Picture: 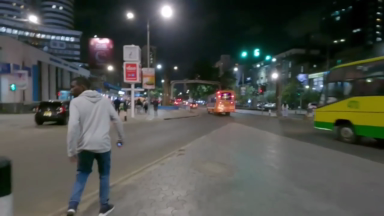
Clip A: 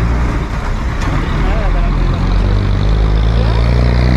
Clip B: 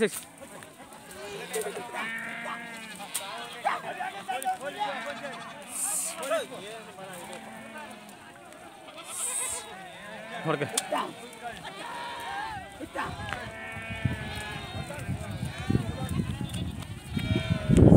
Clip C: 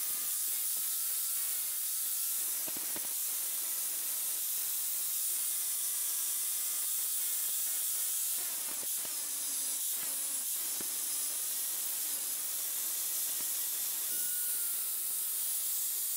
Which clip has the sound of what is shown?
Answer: A